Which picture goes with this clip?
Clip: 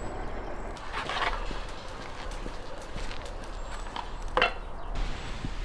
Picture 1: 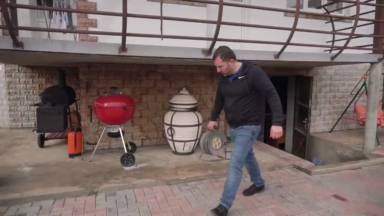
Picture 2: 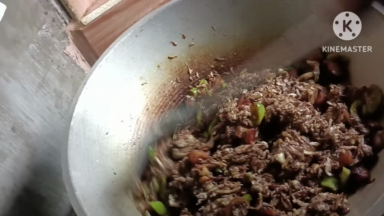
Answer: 1